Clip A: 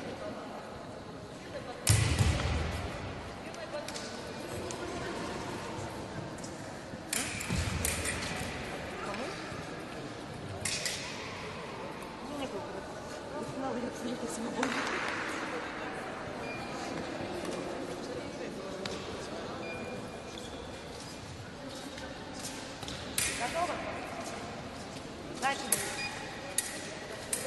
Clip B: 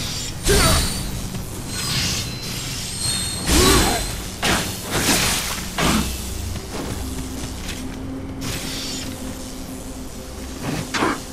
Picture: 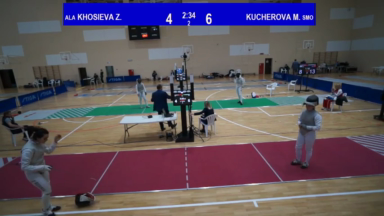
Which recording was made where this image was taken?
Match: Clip A